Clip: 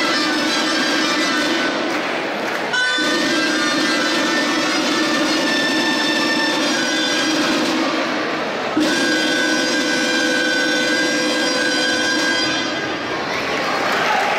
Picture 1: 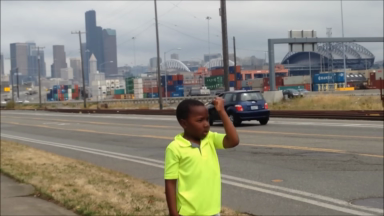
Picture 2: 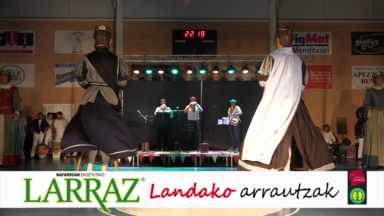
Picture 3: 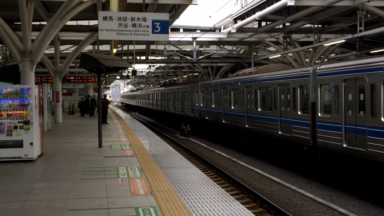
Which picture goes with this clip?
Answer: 2